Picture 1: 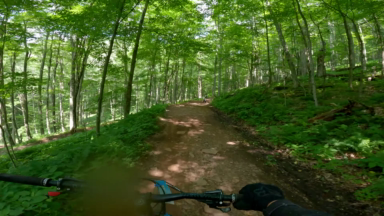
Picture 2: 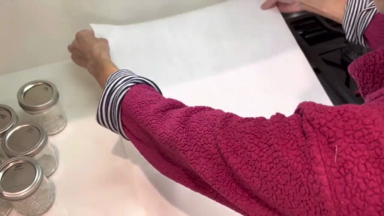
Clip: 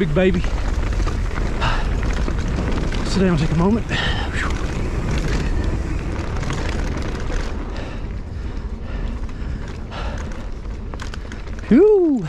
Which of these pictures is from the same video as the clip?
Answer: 1